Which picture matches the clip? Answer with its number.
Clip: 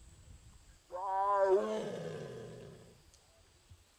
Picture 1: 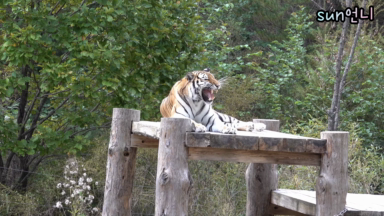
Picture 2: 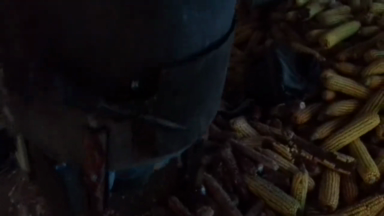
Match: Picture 1